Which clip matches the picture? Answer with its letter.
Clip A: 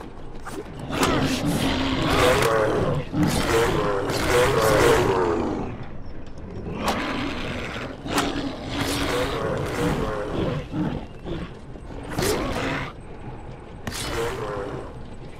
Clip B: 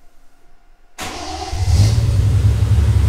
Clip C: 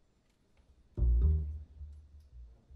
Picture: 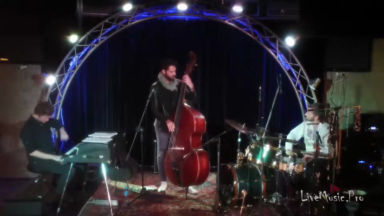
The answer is C